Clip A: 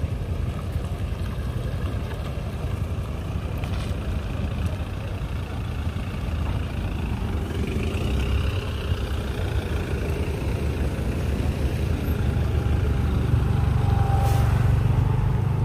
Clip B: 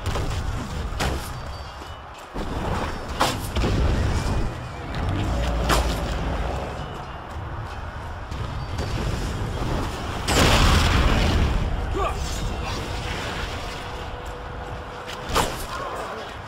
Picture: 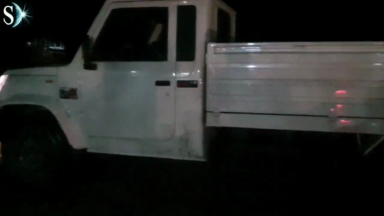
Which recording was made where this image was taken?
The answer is A